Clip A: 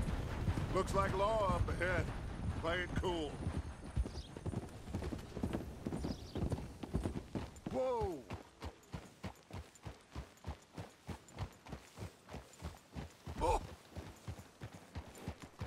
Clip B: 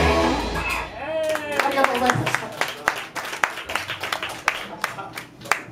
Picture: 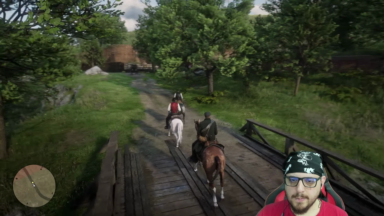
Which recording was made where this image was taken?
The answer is A